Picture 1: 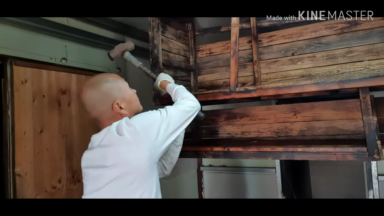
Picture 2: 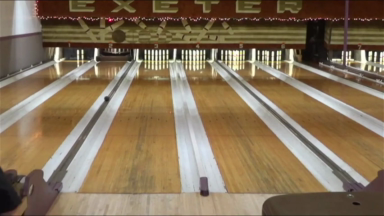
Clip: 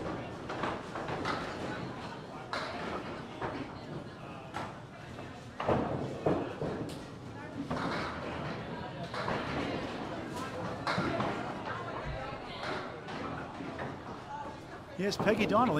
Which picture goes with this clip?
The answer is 2